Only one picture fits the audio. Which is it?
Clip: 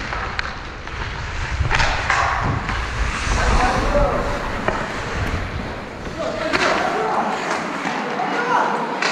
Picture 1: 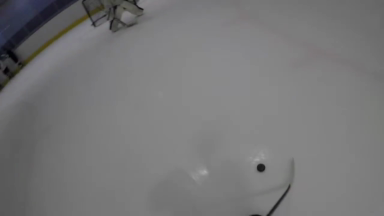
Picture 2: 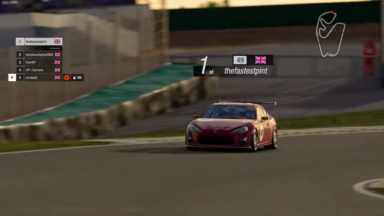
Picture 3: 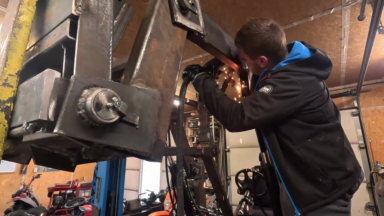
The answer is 1